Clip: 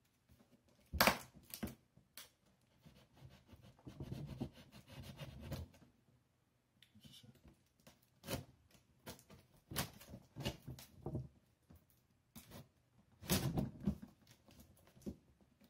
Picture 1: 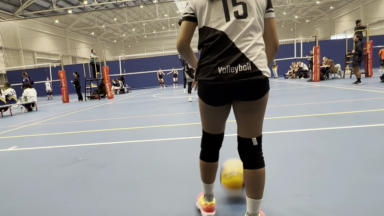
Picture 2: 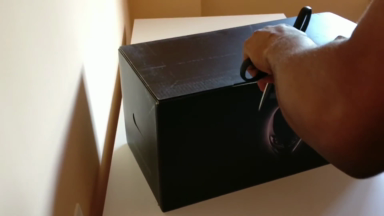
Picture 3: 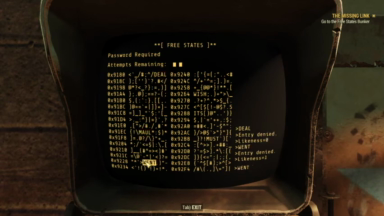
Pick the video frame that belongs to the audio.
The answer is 2